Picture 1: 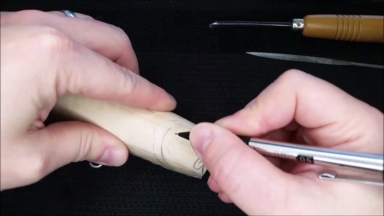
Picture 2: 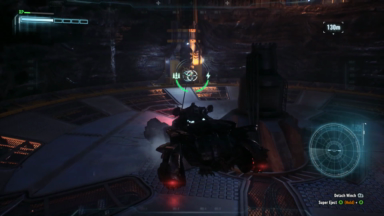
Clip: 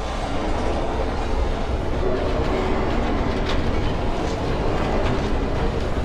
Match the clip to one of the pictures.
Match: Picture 2